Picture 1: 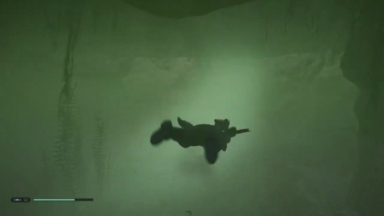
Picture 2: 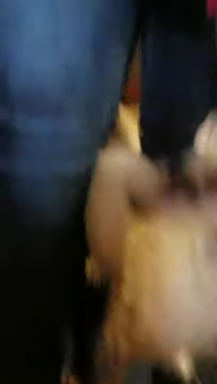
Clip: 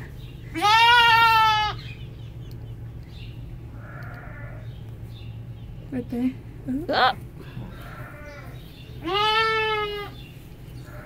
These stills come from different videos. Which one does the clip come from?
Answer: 2